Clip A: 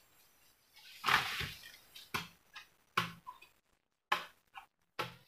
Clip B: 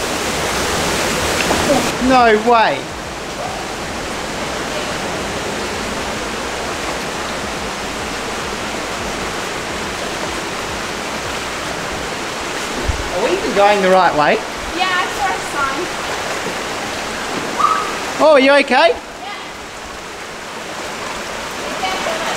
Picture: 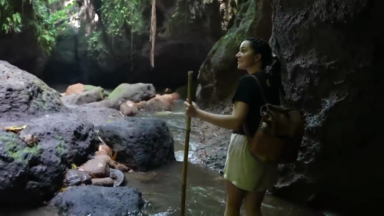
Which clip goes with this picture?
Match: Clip B